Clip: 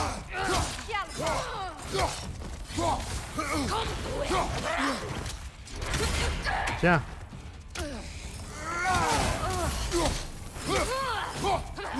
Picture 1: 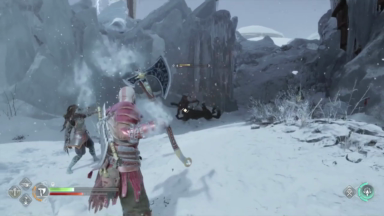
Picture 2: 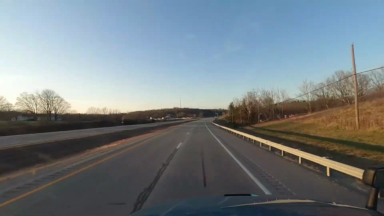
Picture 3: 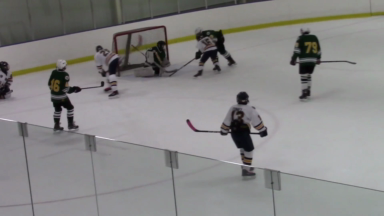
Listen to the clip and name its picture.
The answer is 1